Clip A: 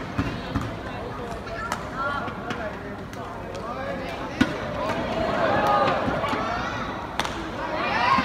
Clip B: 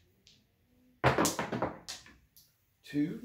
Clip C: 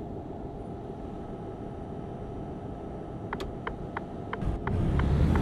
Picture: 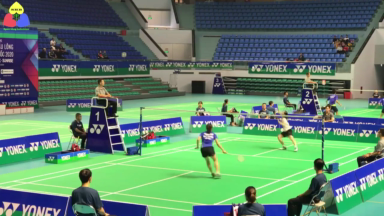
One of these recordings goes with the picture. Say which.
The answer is A